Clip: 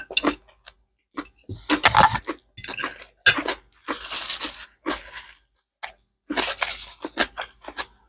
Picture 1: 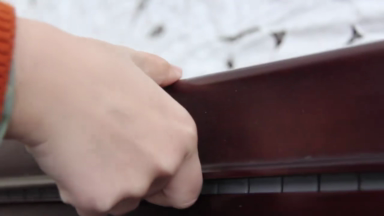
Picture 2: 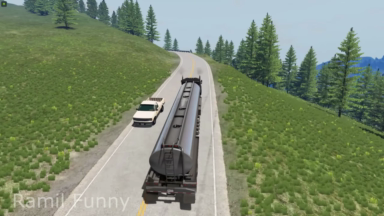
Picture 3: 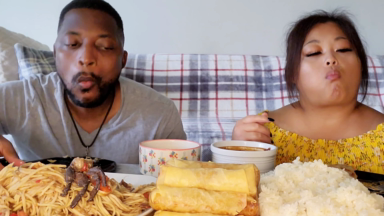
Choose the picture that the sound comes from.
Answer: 3